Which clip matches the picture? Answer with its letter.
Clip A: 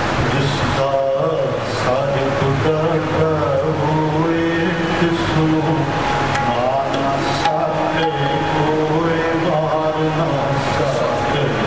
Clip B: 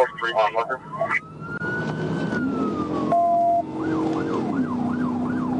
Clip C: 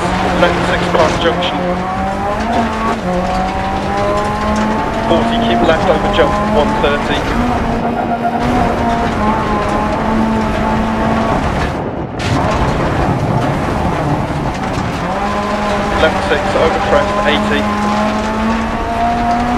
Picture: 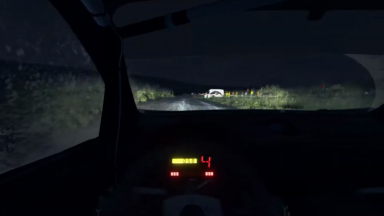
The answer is C